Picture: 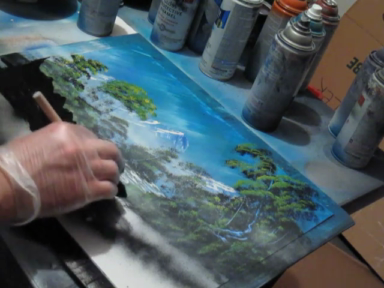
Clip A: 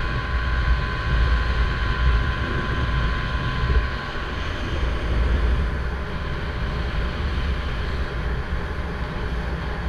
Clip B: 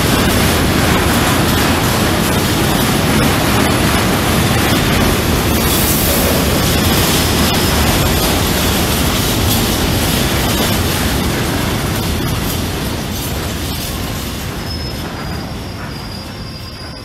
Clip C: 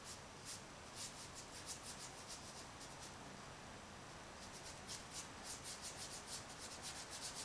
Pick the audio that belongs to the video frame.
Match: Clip C